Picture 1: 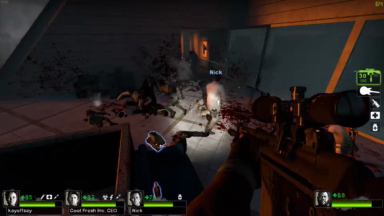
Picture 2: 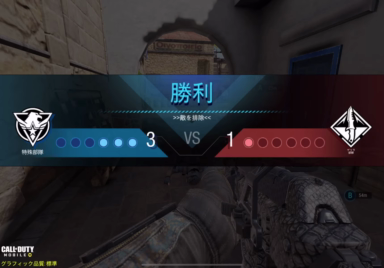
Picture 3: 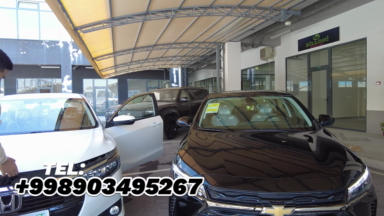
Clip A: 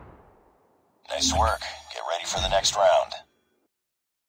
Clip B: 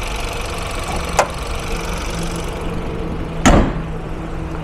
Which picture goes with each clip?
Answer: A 2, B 3